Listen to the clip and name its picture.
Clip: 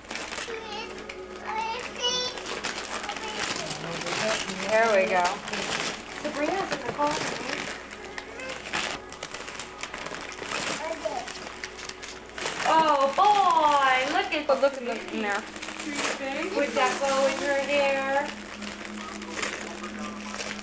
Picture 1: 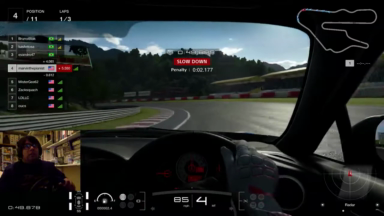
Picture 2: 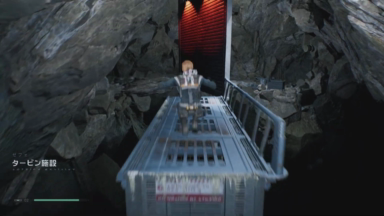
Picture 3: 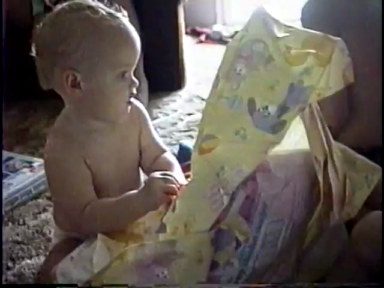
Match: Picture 3